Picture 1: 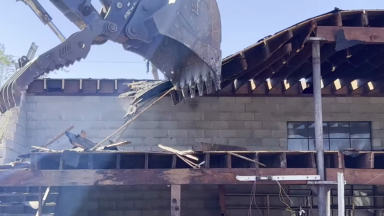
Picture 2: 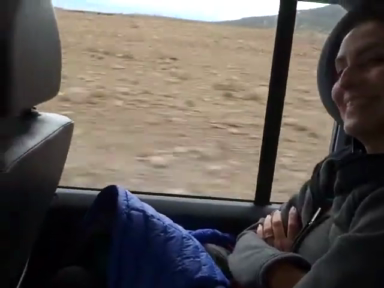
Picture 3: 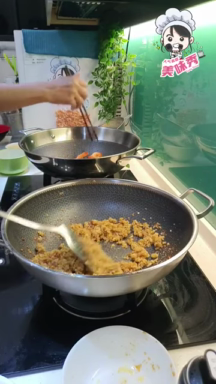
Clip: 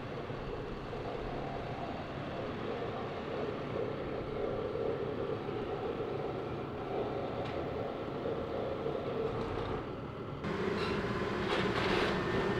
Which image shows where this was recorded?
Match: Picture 1